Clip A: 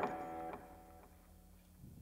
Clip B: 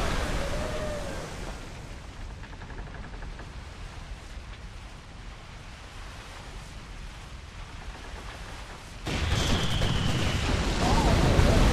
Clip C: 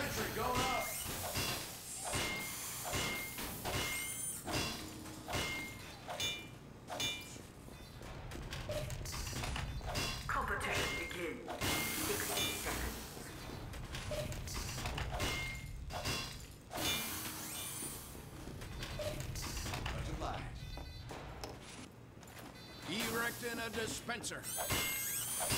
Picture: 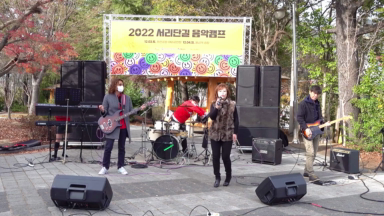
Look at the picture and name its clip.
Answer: A